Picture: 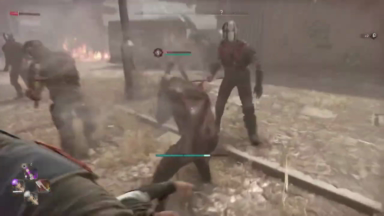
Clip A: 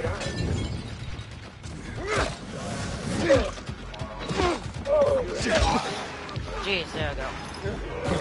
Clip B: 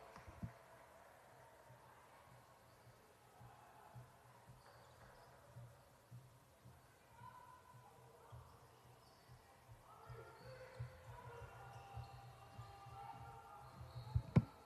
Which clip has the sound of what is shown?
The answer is A